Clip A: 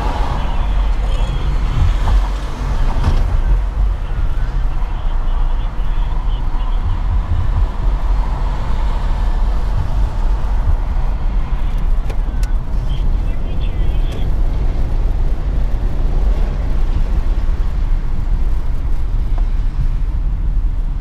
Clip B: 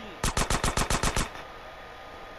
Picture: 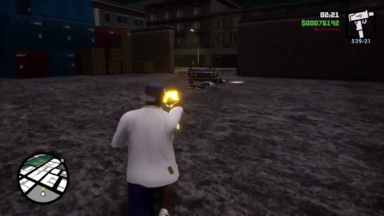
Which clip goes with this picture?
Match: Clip B